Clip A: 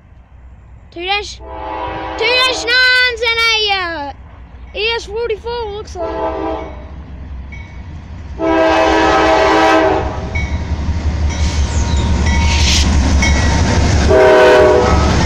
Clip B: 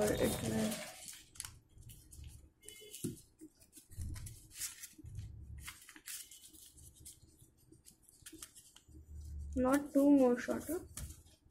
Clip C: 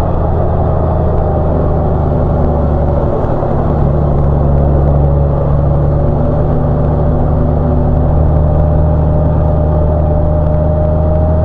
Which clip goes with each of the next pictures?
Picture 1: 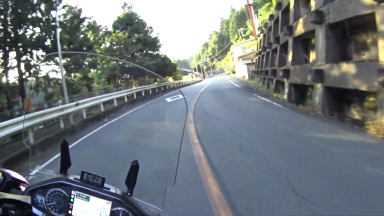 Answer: C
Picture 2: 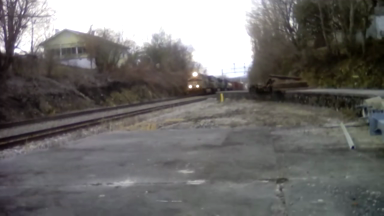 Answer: A